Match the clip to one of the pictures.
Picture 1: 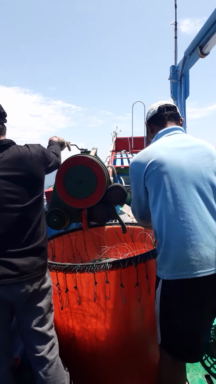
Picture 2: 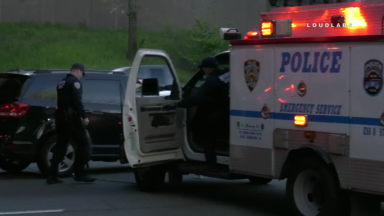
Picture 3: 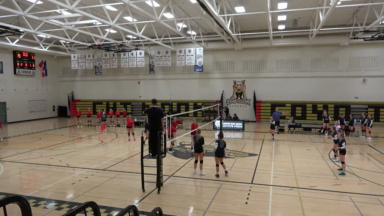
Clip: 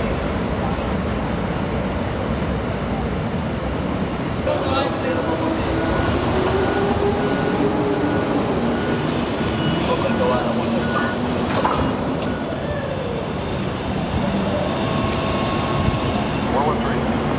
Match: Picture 2